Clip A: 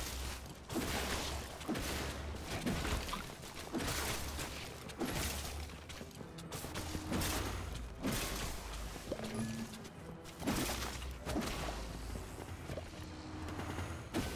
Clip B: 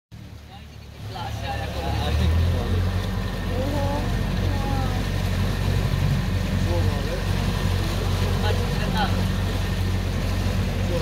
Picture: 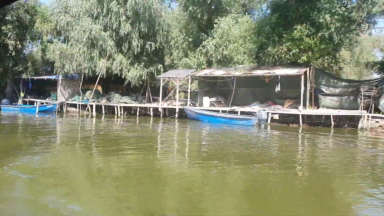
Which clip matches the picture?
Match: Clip B